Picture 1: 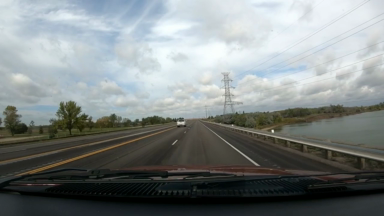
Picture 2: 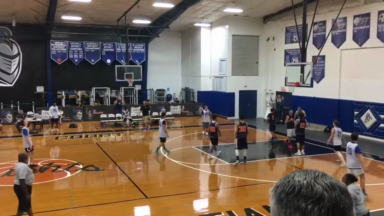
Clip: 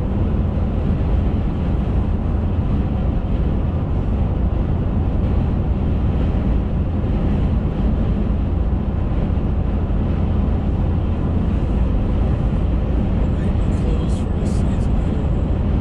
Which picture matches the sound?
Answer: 1